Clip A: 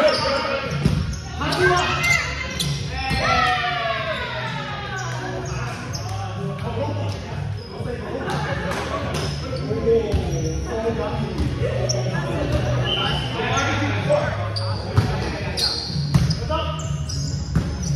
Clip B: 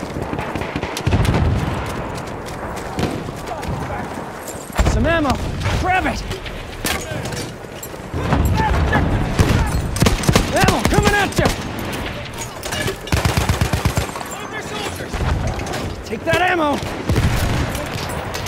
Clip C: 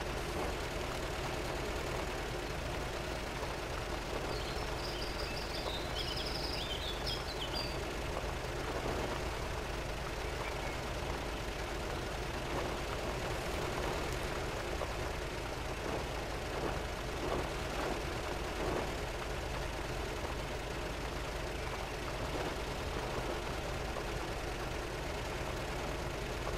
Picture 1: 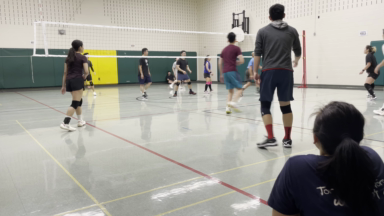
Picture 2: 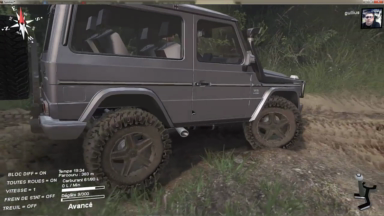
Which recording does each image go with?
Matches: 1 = A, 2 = C